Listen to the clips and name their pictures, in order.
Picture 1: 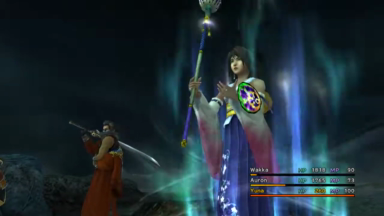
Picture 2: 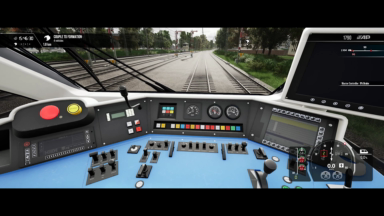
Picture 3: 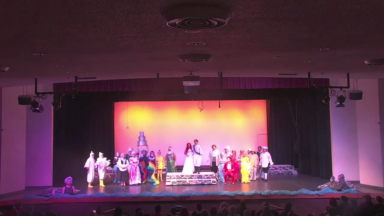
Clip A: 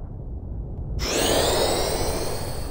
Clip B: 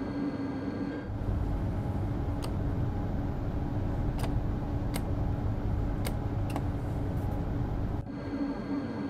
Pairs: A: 1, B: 2